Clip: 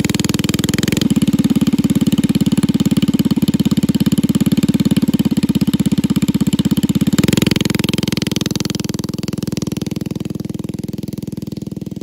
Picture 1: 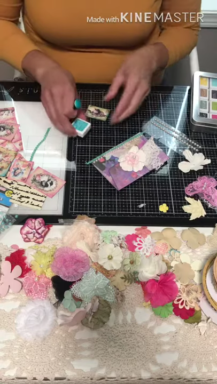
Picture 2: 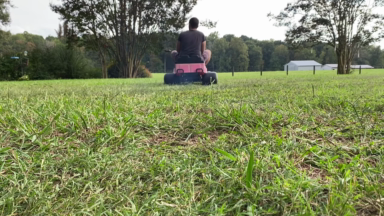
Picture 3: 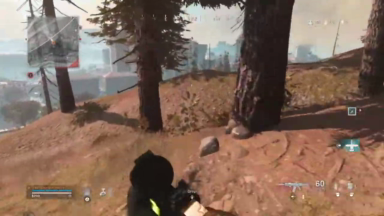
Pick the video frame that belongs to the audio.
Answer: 2